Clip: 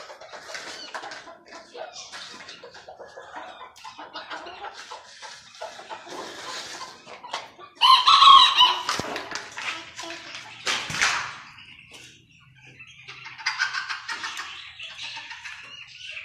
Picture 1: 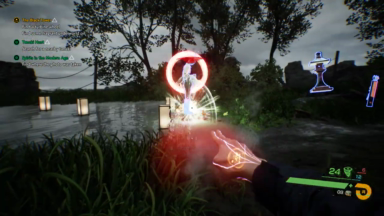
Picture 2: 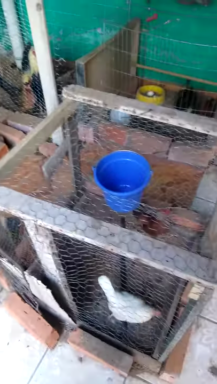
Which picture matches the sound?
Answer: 2